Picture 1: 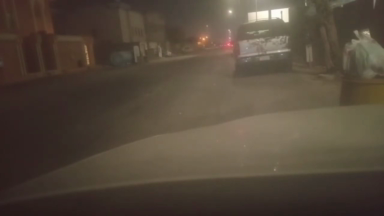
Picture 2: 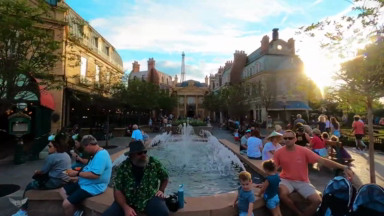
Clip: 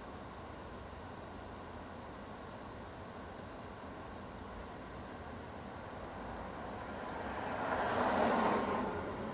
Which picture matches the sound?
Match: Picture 1